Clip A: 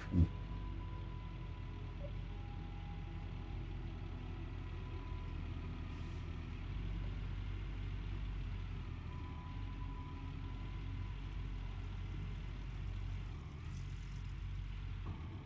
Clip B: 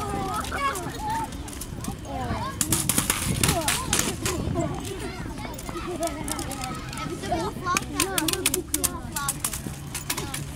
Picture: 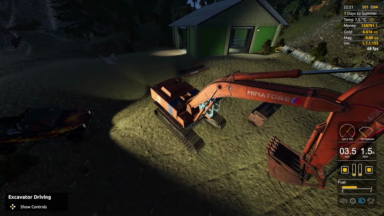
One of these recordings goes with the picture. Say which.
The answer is A